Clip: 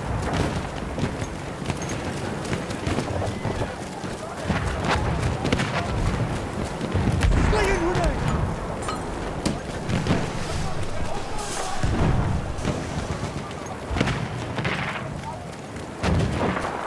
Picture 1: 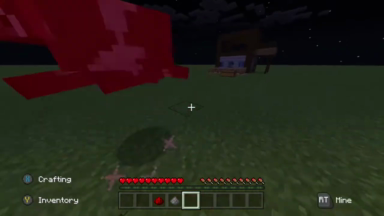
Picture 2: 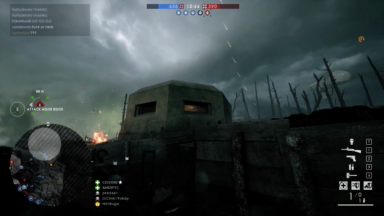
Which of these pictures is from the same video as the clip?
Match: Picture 2